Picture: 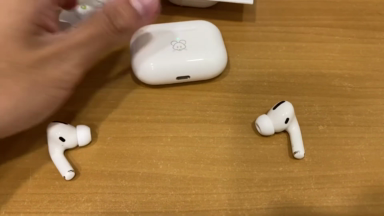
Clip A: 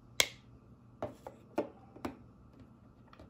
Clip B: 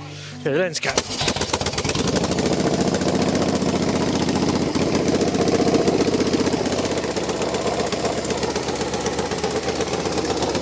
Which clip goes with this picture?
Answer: A